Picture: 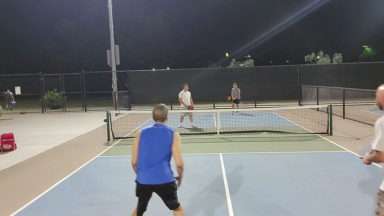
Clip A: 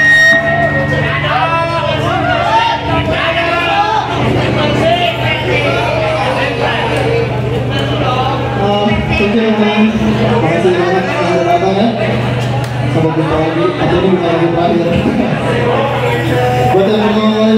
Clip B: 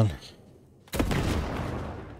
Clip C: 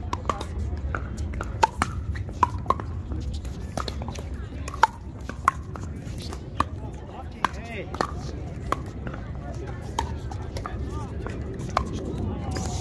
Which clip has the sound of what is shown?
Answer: C